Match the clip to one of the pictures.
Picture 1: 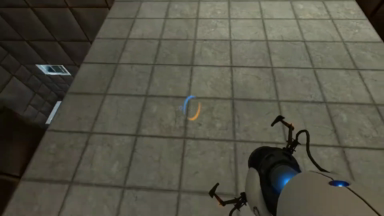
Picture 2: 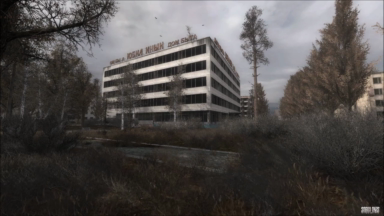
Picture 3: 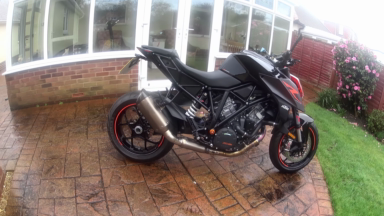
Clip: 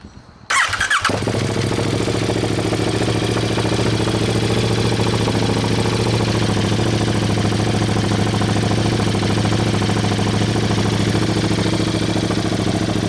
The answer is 3